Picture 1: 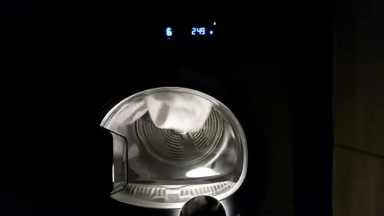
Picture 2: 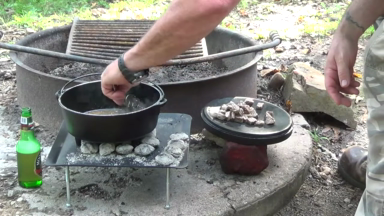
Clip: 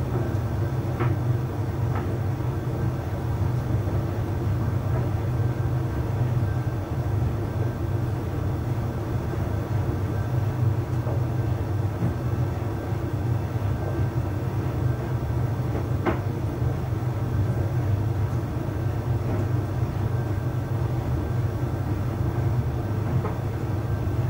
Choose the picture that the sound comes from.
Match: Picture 1